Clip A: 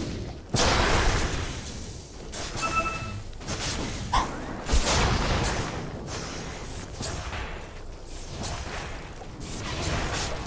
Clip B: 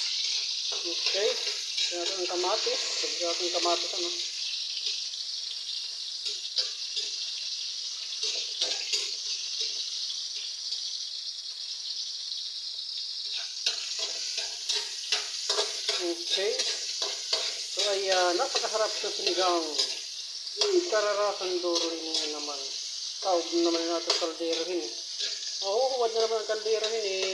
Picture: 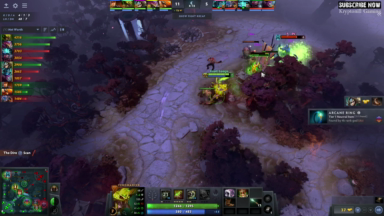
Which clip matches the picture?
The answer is A